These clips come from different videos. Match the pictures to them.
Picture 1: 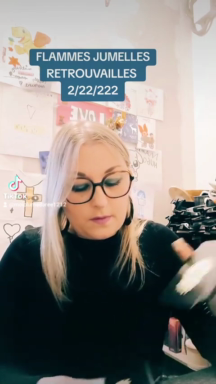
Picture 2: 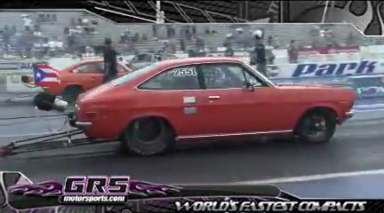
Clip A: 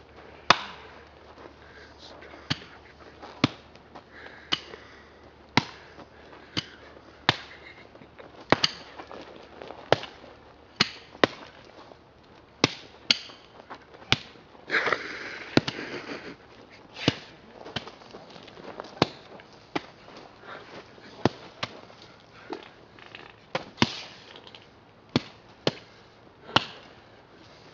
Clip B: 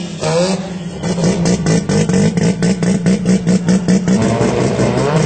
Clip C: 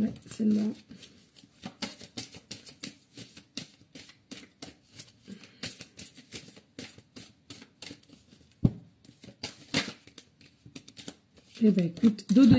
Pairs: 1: C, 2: B